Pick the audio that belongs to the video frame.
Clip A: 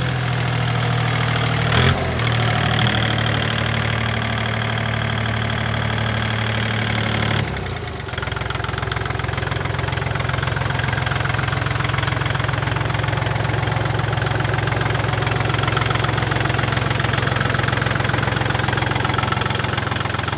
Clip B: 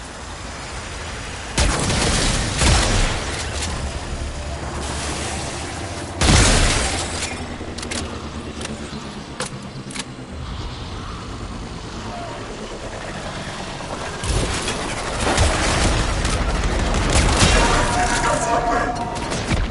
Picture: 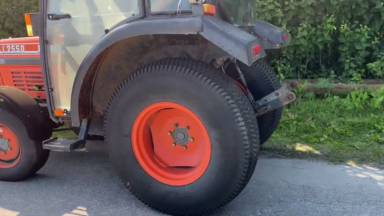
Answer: A